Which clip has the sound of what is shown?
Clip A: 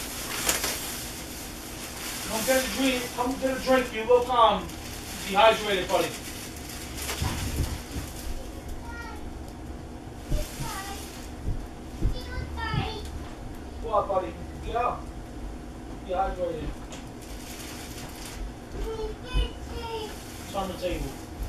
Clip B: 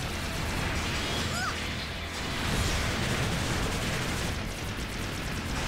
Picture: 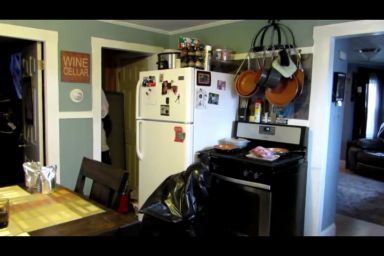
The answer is A